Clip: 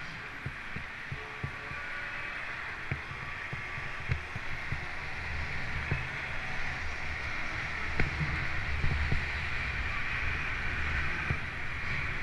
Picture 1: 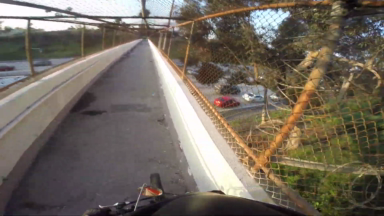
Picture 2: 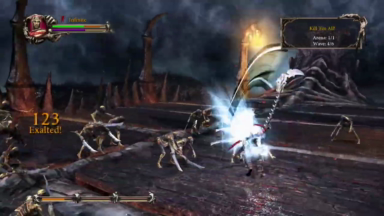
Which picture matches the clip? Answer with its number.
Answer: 1